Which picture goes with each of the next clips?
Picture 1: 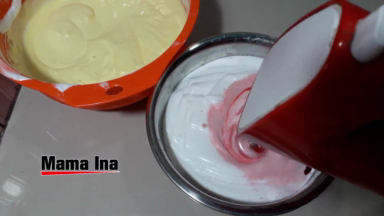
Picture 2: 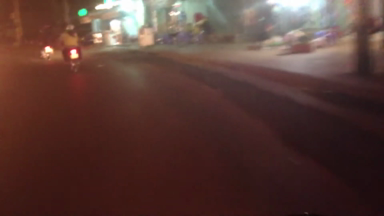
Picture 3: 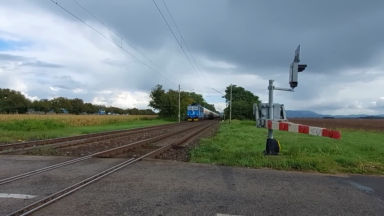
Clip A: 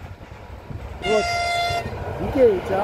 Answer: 3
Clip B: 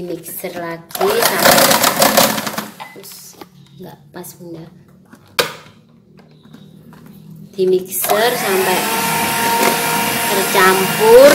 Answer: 1